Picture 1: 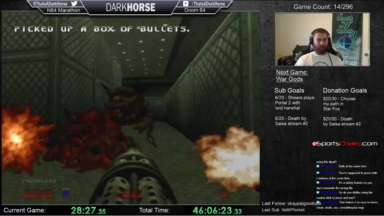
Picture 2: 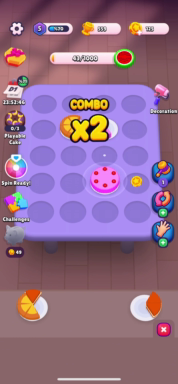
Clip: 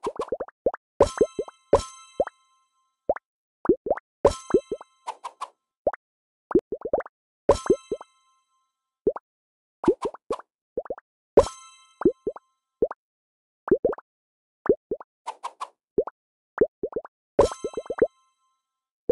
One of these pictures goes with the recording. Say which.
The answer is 2